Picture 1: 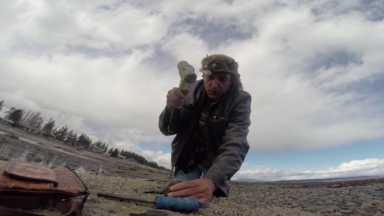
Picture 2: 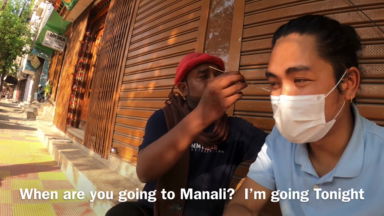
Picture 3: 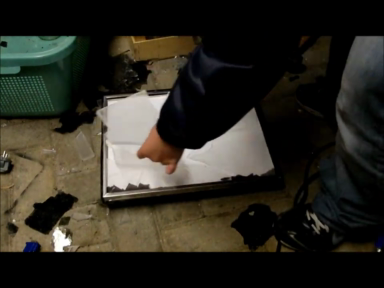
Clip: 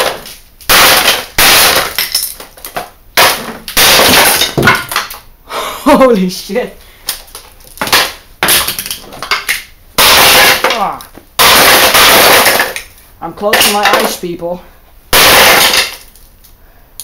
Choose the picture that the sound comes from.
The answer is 3